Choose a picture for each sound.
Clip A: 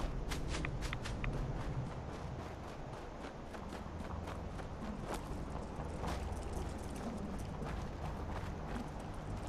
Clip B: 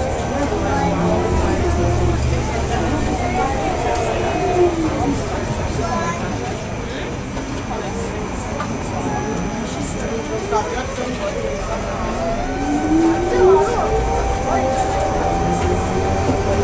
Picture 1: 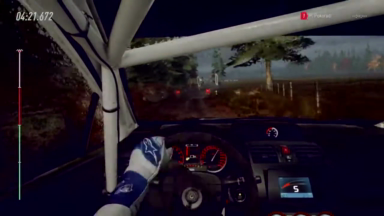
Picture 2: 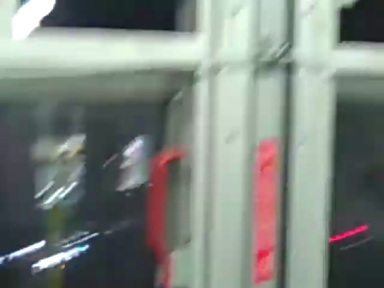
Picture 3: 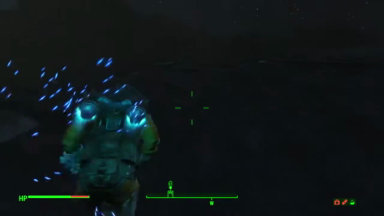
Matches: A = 3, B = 2